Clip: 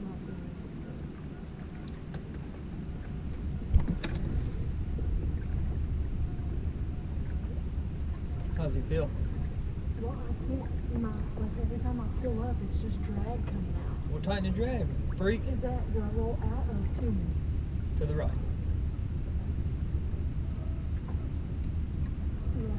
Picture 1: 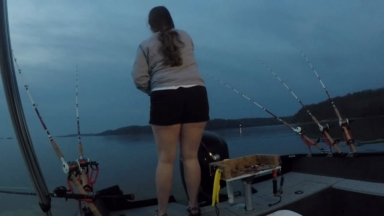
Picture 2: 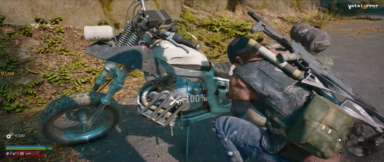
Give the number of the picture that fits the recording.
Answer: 1